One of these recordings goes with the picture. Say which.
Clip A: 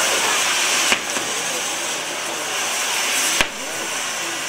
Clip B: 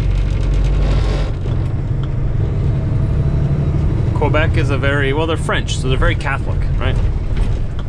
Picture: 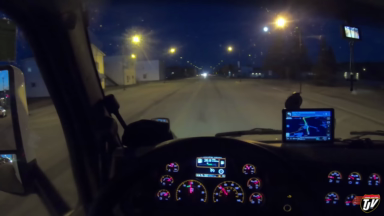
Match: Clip B